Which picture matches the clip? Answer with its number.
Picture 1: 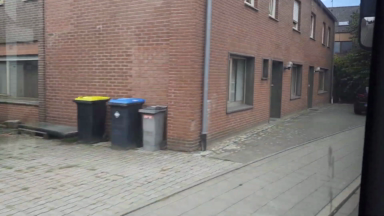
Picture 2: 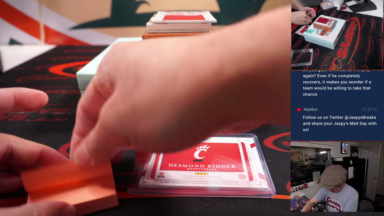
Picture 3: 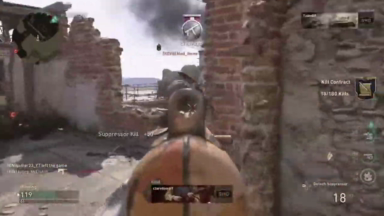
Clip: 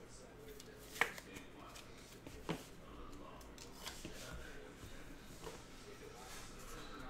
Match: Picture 2